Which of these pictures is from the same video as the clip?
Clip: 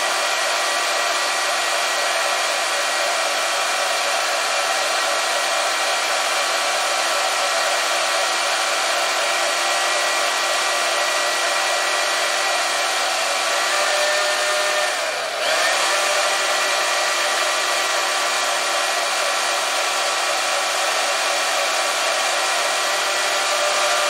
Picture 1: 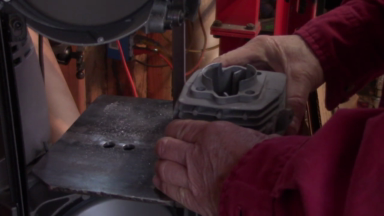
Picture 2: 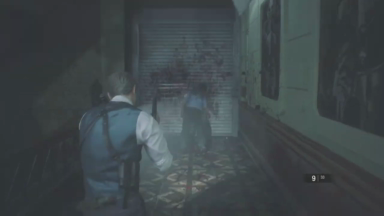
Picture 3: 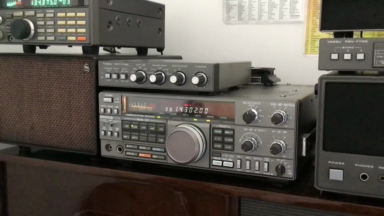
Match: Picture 1